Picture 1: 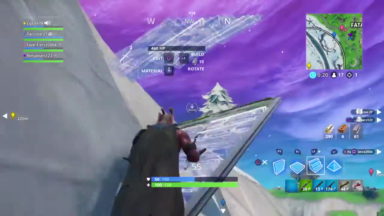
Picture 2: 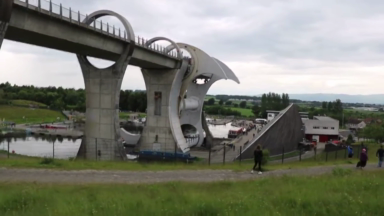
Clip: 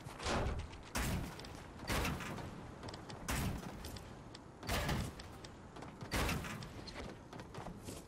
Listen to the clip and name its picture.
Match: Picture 1